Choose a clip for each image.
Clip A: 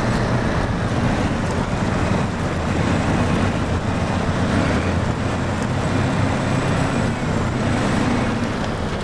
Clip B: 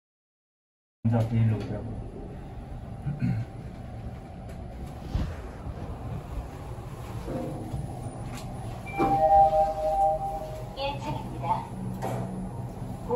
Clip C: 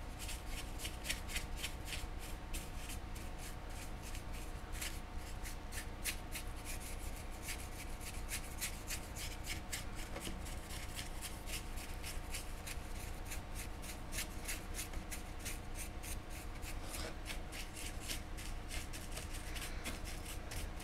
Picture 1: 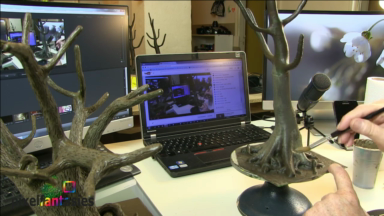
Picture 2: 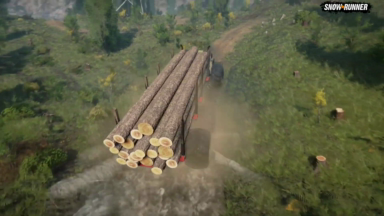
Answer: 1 C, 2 A